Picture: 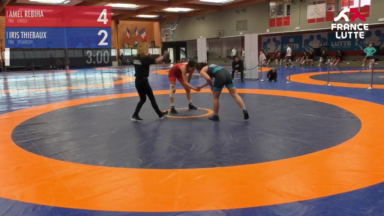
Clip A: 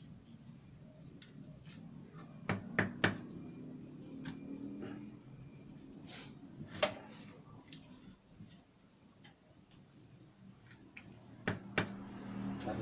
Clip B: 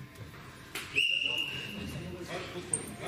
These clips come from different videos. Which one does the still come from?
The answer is B